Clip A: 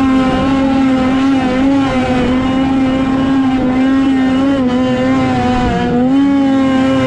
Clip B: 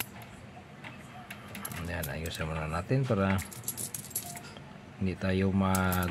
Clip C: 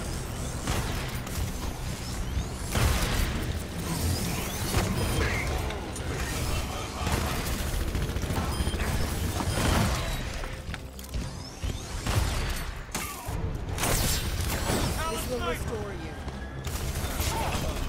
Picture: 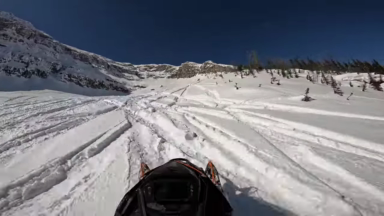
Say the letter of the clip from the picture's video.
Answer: A